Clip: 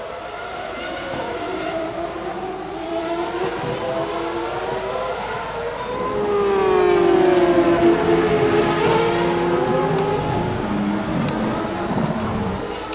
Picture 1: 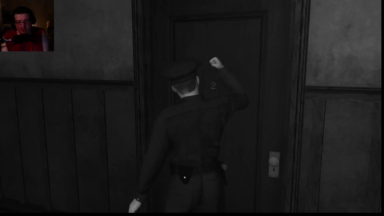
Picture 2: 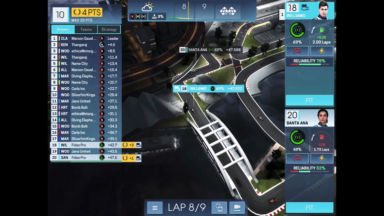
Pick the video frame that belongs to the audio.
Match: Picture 2